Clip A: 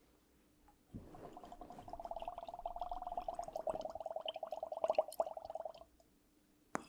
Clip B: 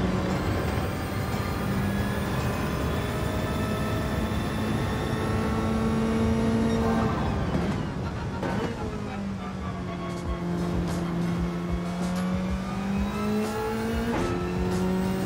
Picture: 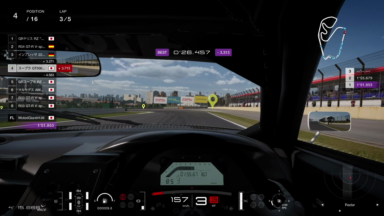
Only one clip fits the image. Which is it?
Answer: B